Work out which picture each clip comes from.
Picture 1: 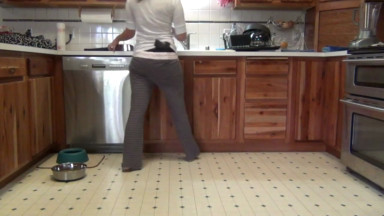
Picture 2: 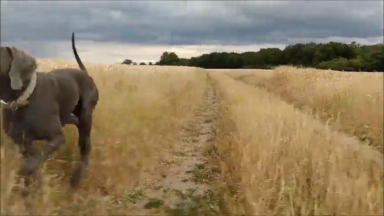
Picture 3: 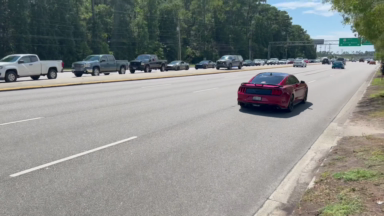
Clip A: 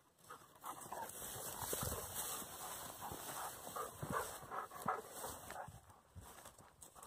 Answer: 2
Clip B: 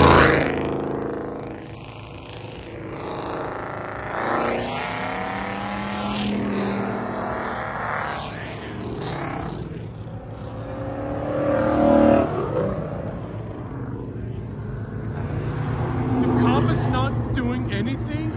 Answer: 3